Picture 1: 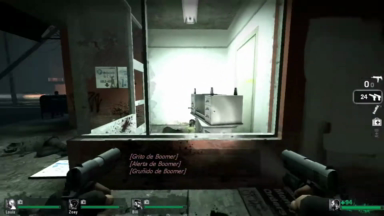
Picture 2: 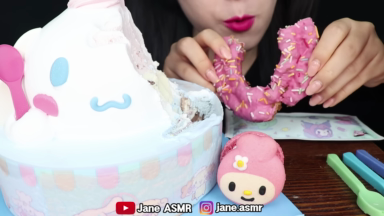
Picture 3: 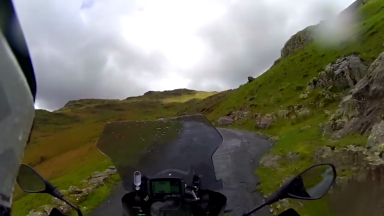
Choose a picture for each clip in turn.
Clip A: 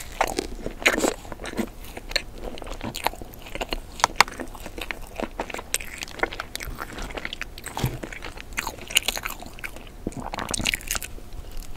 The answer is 2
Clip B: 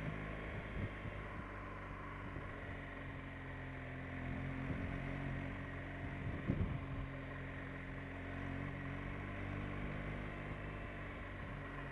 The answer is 3